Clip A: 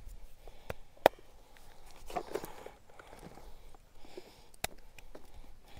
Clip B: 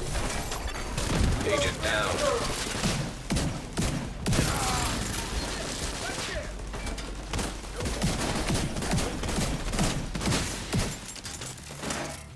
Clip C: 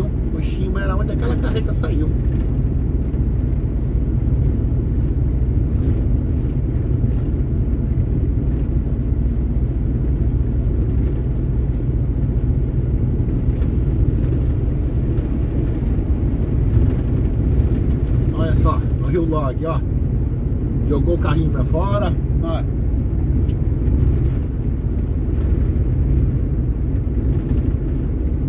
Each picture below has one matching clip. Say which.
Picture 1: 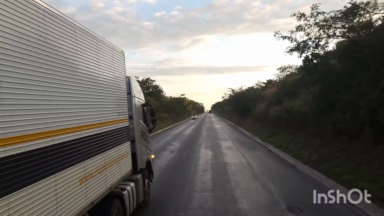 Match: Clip C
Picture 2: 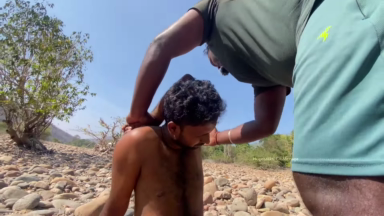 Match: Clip A